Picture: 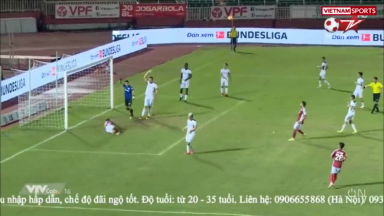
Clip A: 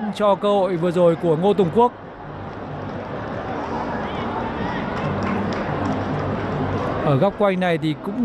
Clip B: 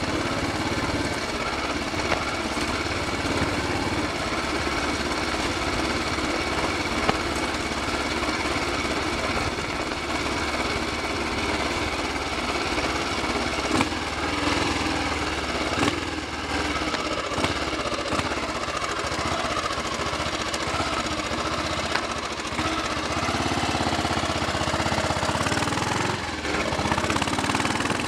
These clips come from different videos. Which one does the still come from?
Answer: A